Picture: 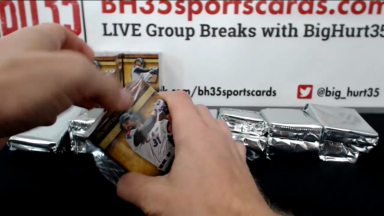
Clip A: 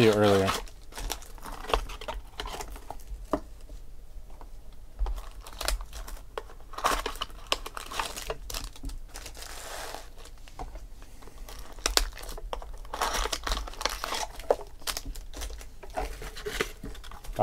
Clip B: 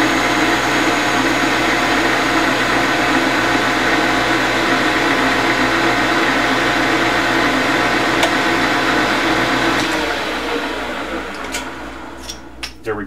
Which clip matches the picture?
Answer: A